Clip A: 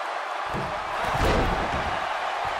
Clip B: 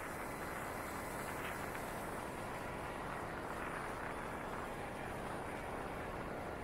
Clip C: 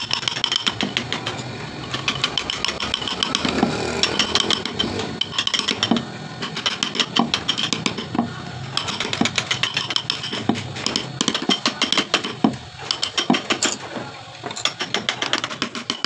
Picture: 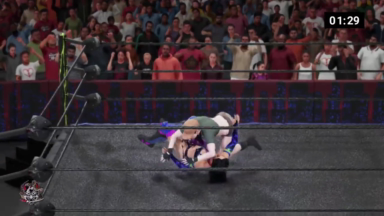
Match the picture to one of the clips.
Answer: A